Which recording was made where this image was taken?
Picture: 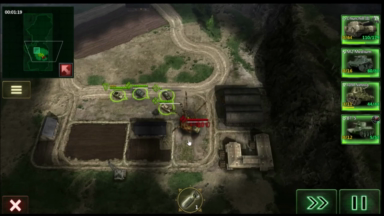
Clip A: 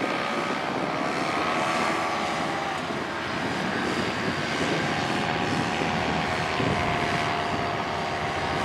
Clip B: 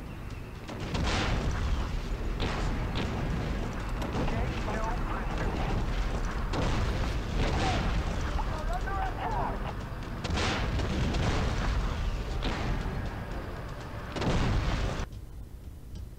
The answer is B